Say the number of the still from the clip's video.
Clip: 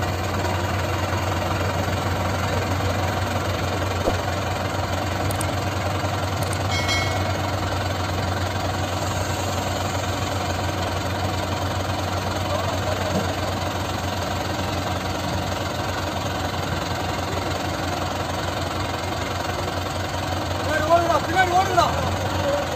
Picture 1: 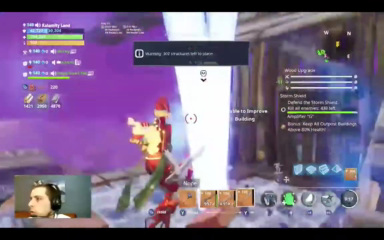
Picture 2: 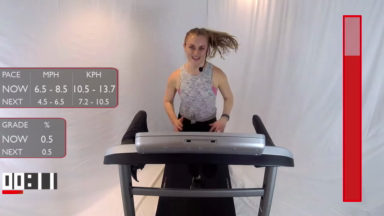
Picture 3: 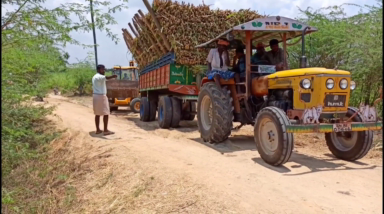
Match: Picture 3